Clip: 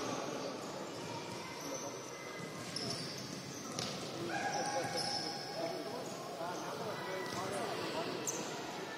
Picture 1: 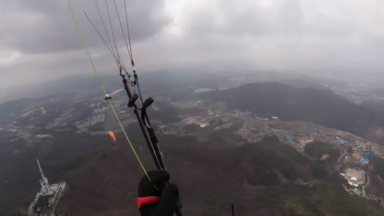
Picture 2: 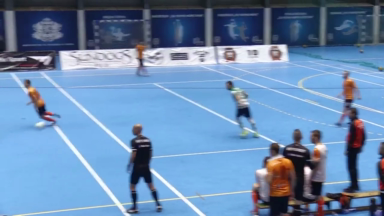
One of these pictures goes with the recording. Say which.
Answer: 2